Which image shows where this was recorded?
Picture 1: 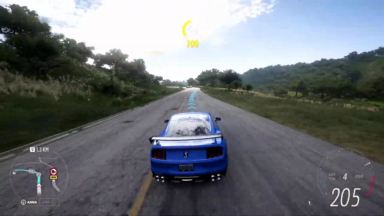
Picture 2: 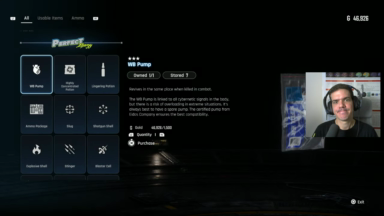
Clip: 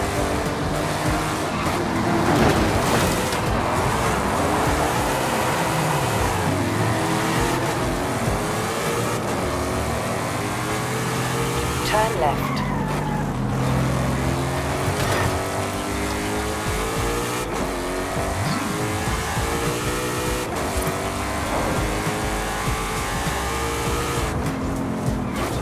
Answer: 1